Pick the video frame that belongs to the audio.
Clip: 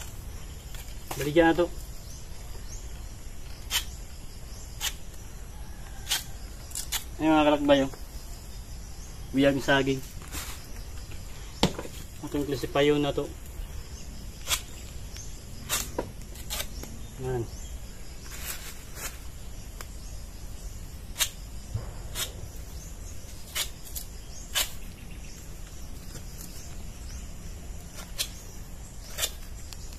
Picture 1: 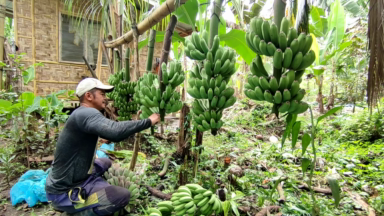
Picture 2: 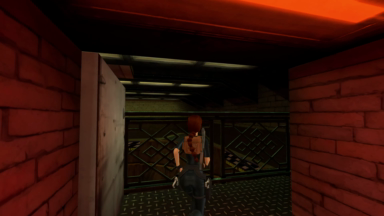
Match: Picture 1